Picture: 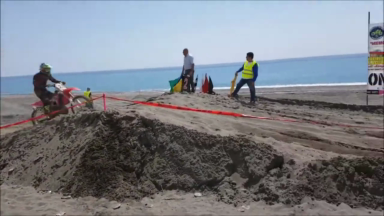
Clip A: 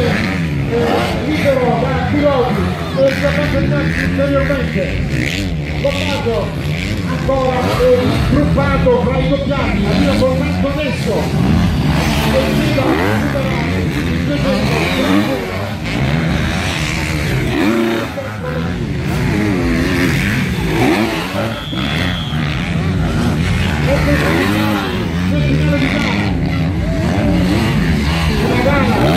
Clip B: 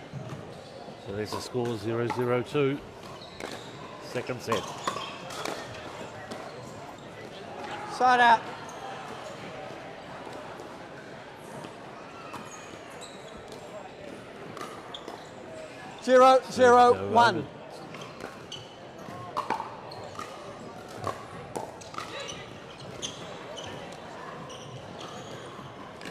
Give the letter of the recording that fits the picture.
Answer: A